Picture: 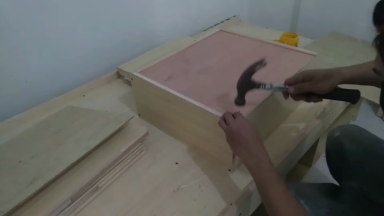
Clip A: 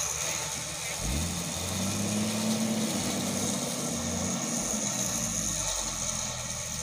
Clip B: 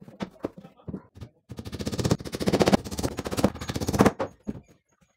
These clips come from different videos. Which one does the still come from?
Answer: B